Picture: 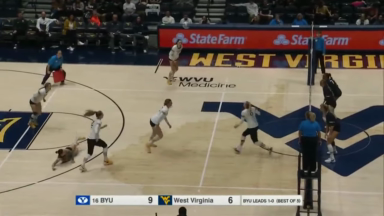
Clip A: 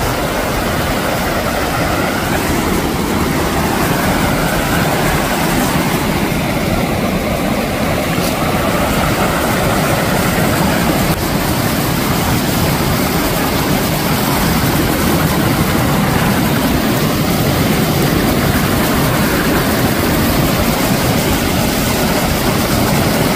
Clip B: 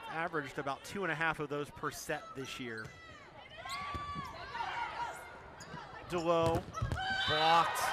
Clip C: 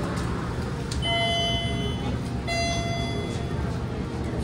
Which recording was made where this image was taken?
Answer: B